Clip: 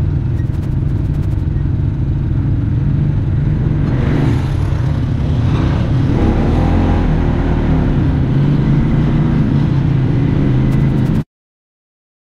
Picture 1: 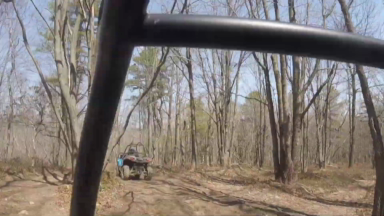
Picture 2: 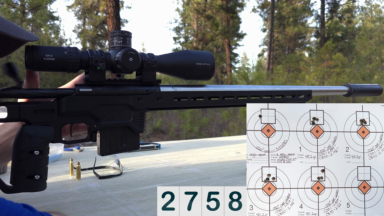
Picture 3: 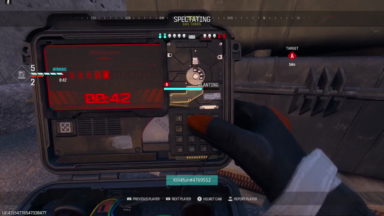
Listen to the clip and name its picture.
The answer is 1